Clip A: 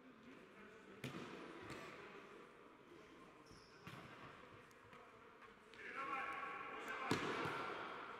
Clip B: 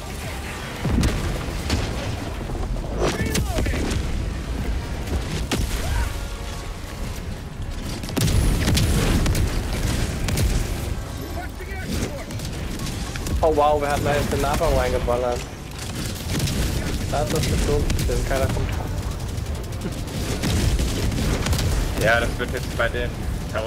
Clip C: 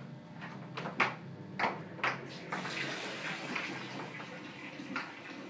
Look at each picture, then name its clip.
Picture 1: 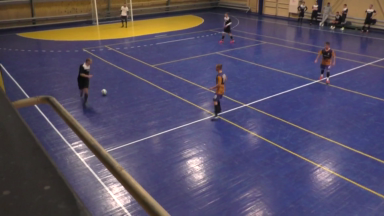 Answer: A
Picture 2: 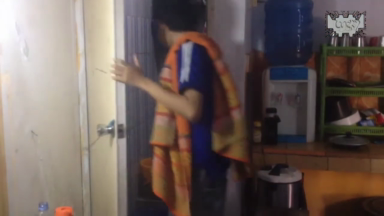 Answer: C